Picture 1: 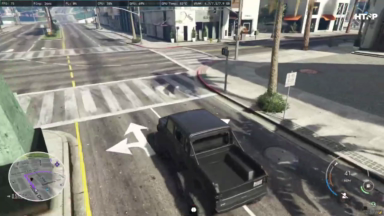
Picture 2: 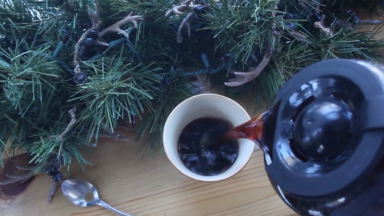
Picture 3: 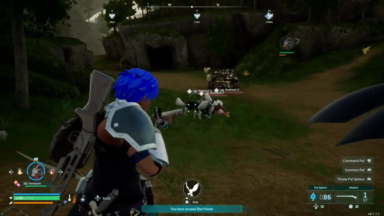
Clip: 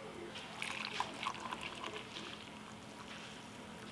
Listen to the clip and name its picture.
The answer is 2